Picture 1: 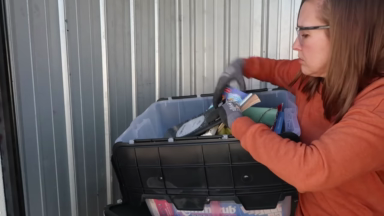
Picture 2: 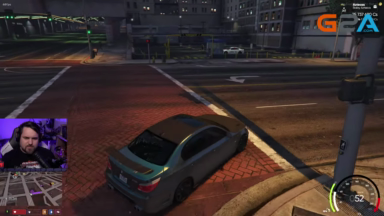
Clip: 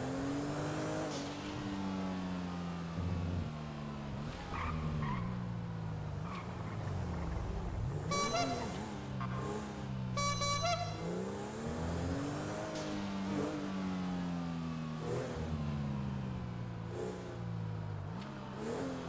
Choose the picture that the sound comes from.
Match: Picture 2